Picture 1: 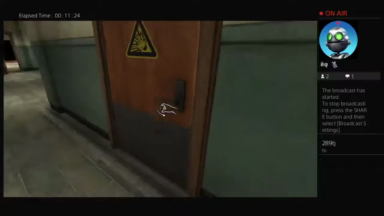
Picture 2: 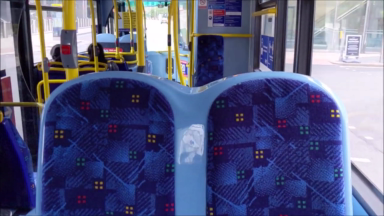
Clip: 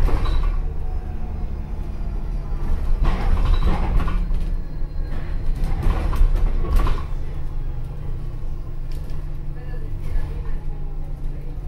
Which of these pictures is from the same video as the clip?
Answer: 2